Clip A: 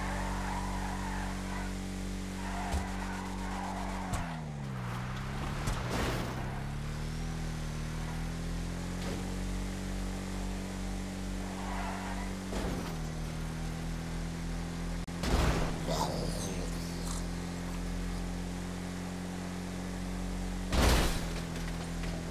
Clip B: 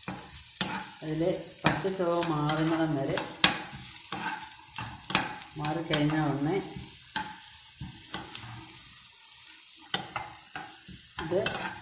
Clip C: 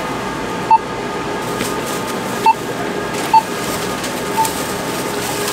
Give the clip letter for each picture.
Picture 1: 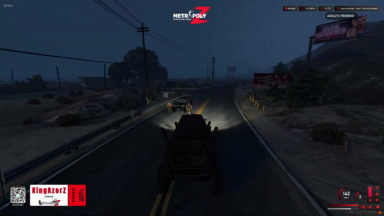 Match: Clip A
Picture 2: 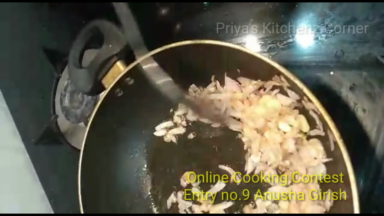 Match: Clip B